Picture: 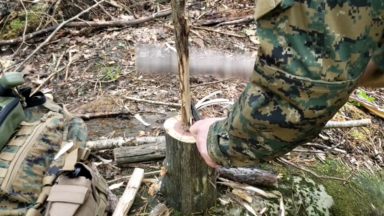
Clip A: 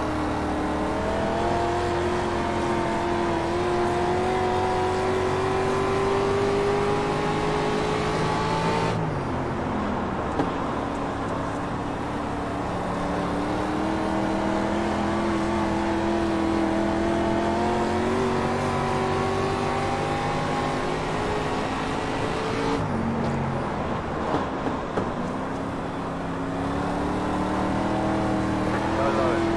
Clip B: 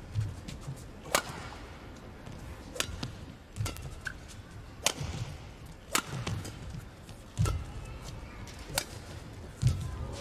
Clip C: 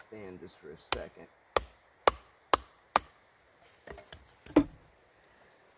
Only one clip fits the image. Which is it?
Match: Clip C